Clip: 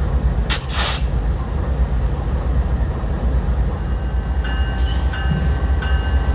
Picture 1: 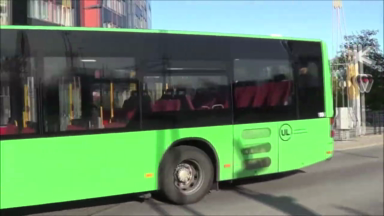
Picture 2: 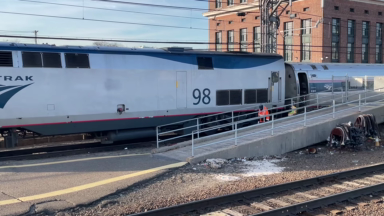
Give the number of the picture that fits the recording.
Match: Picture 2